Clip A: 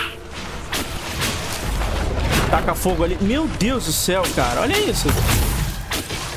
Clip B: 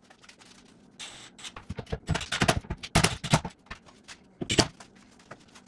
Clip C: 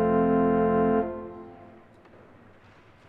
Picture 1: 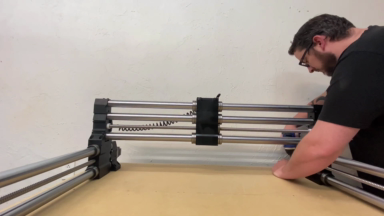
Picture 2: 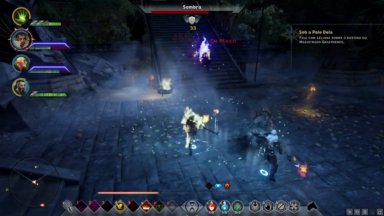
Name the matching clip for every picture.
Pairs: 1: B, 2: A